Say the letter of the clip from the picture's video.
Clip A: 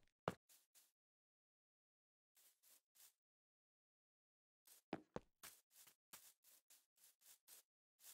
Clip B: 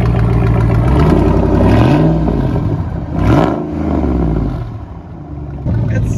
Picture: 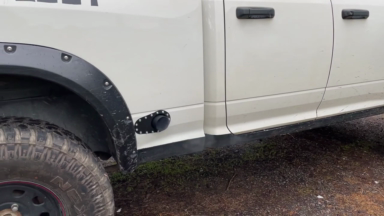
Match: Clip B